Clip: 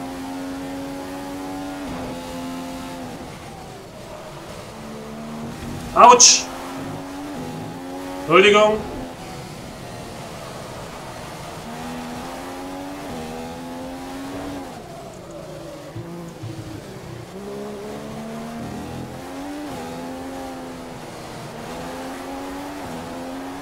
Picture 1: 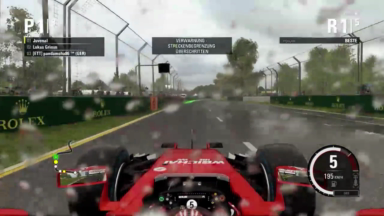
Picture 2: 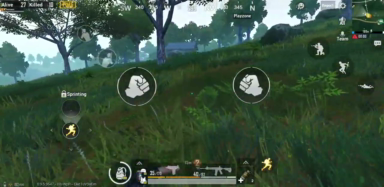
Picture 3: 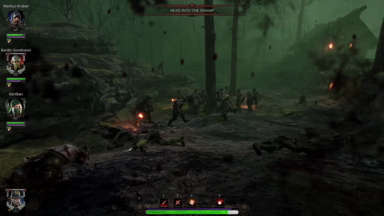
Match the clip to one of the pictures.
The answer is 1